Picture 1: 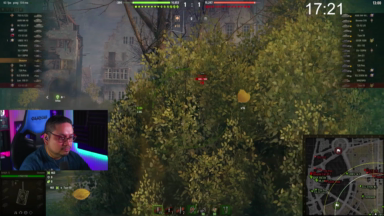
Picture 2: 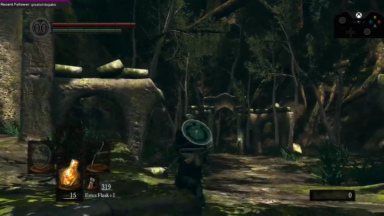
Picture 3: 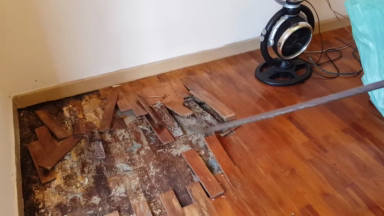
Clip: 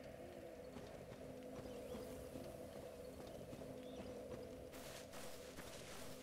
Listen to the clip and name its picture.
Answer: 2